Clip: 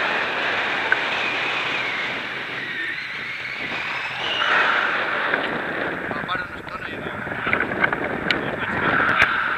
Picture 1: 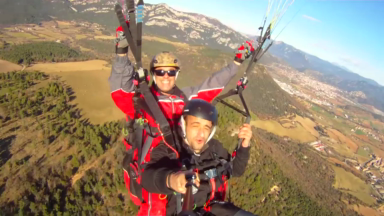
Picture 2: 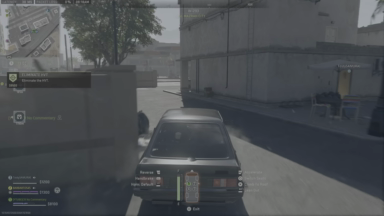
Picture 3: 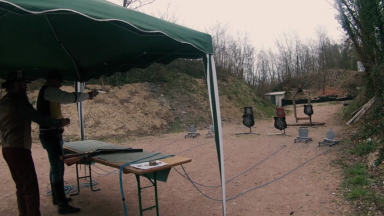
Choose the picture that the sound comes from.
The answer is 1